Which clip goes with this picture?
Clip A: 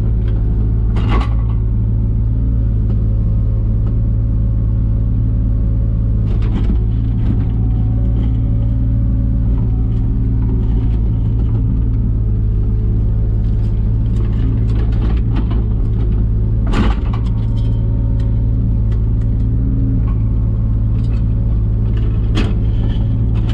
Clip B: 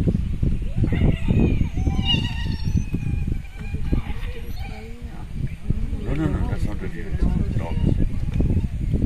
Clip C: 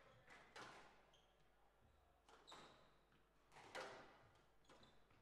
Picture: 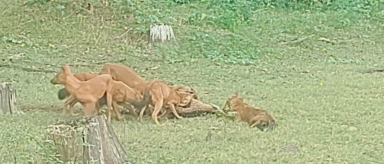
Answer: B